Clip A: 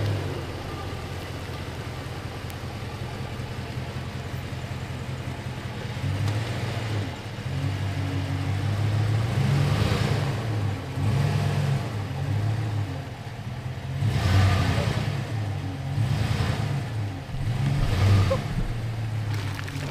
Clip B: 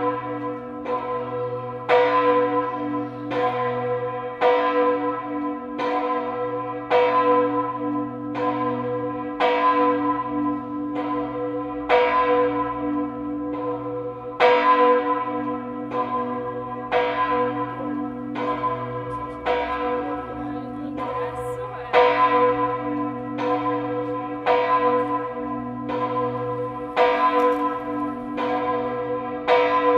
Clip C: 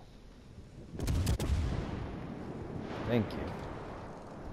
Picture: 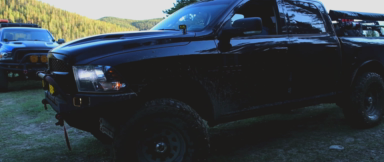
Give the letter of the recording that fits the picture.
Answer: A